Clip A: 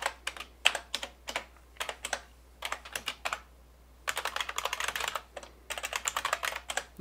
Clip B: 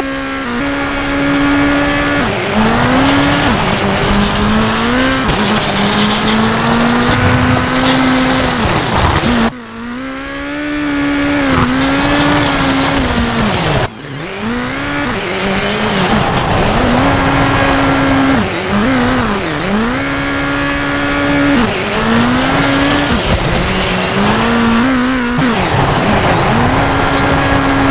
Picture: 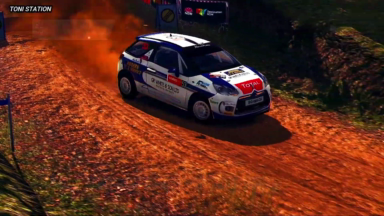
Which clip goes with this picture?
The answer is B